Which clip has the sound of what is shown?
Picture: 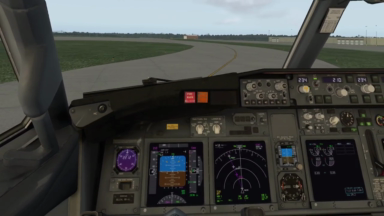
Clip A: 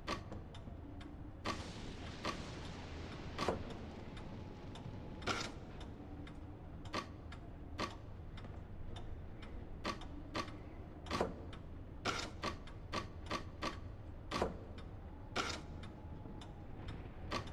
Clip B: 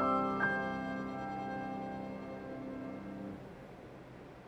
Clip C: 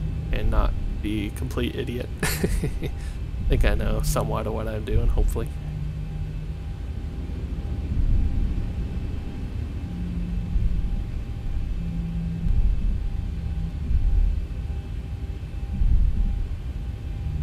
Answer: C